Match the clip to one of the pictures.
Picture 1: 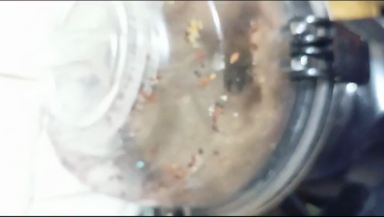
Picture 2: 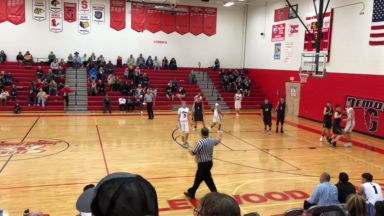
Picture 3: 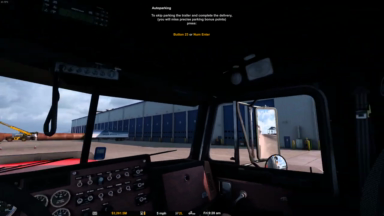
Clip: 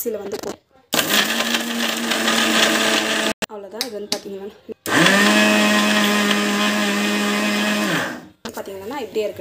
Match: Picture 1